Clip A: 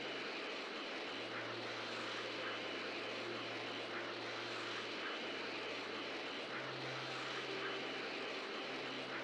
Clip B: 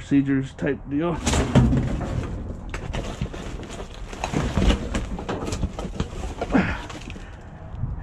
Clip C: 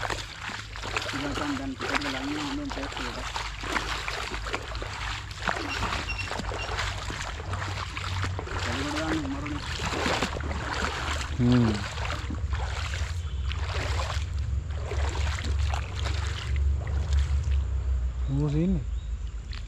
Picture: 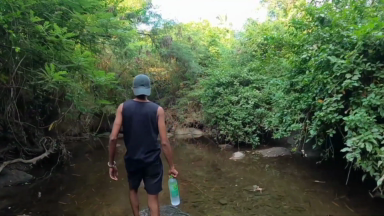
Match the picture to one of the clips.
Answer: C